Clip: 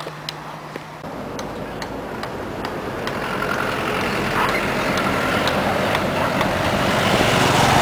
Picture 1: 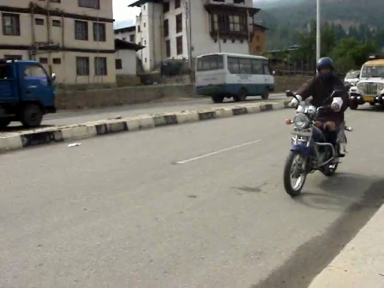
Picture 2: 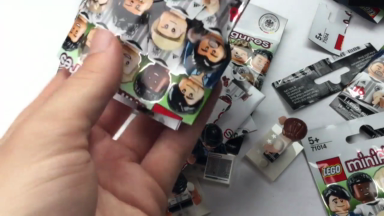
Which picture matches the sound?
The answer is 1